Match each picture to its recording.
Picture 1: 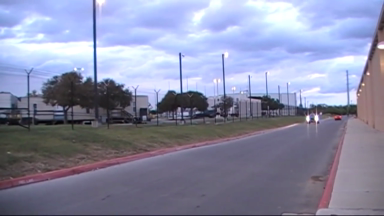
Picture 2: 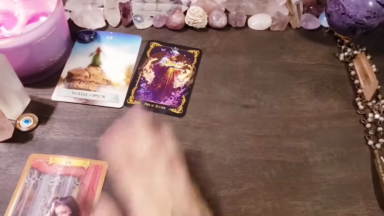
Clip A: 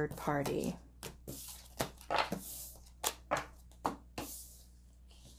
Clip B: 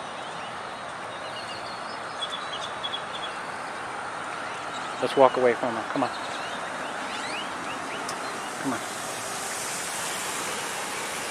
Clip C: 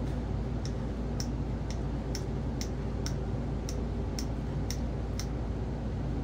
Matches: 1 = B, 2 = A